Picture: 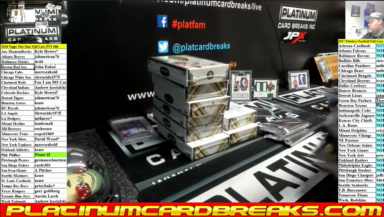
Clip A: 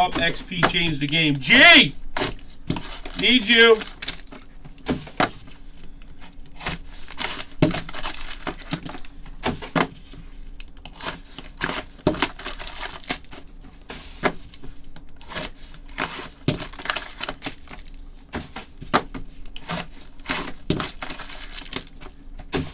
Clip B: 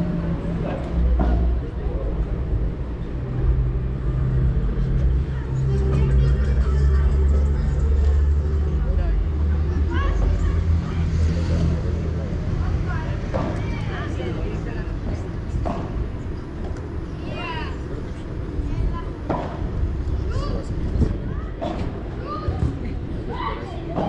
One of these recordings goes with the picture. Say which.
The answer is A